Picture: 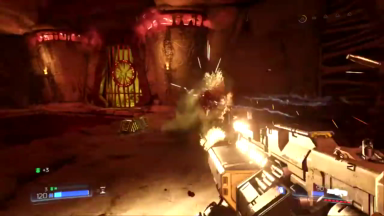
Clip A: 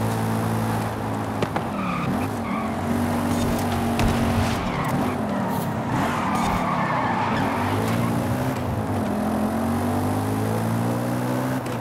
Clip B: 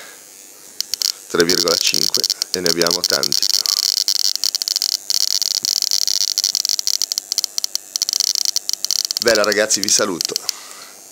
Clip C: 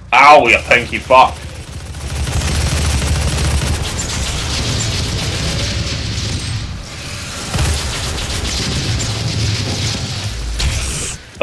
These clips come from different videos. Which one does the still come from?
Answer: C